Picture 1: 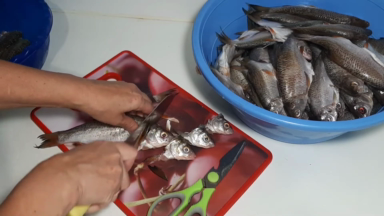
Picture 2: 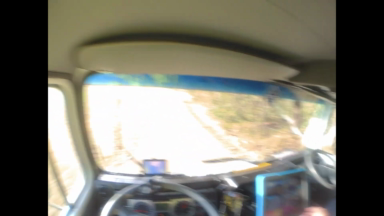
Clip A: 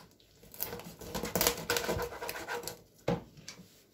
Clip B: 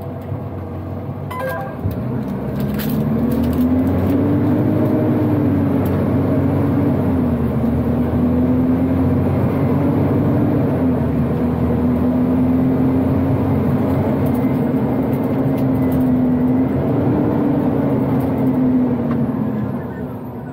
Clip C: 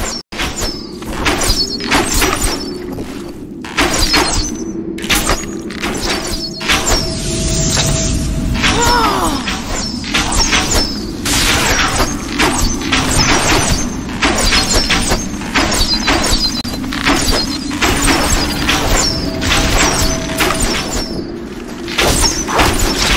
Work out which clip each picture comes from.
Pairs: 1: A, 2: B